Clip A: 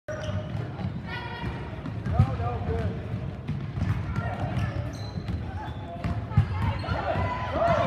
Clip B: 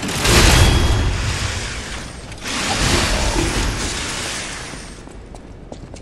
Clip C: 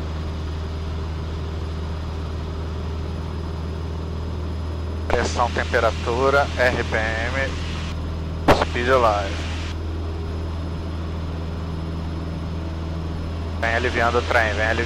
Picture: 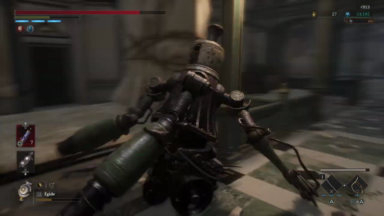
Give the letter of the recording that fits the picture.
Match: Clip B